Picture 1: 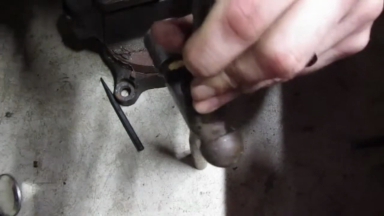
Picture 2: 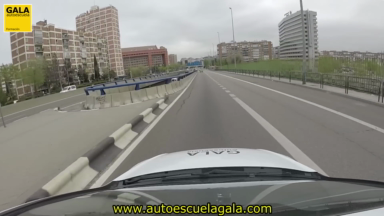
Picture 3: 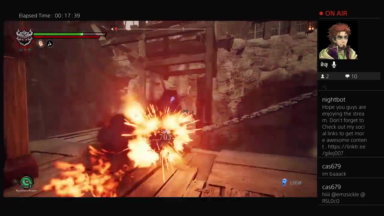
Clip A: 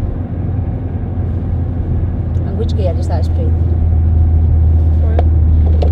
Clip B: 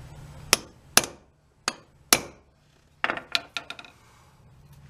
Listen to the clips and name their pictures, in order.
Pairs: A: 2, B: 1